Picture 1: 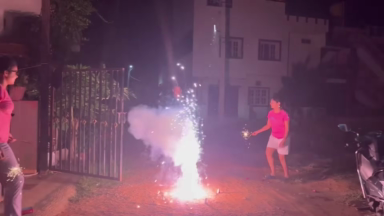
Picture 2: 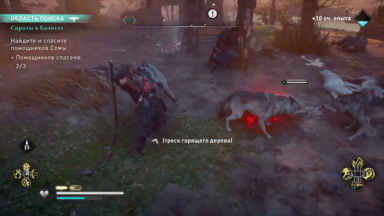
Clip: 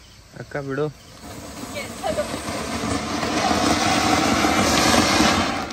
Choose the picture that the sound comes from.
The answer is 1